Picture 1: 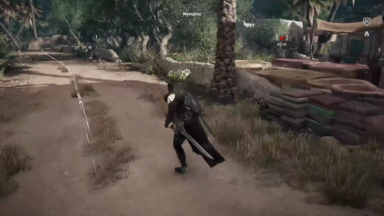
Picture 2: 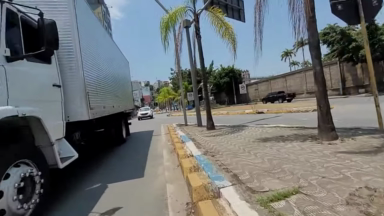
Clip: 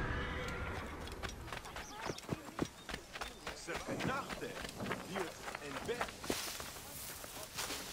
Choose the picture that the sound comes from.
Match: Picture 1